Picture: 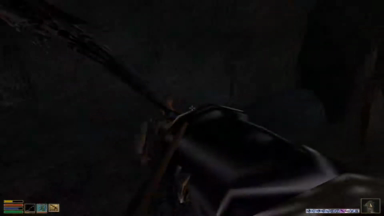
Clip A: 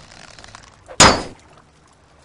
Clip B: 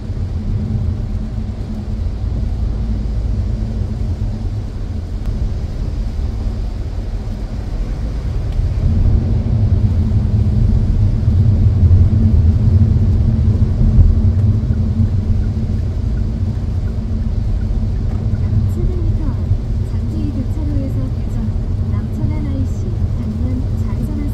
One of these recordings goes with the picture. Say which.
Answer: A